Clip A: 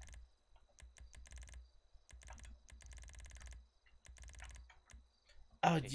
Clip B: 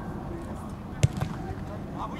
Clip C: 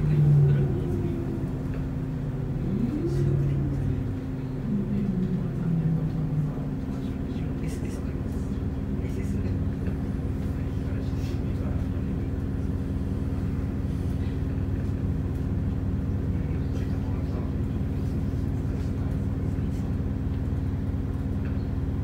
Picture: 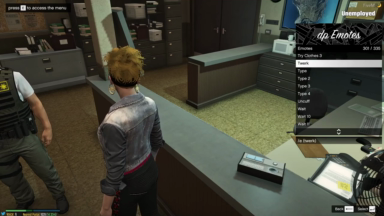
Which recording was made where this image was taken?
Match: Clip A